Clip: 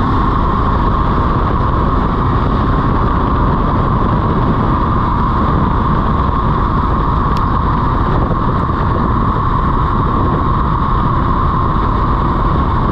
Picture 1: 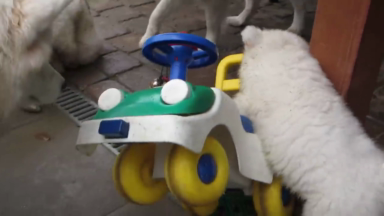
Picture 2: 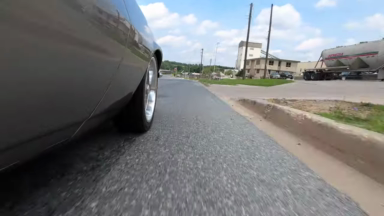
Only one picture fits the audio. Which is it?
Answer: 2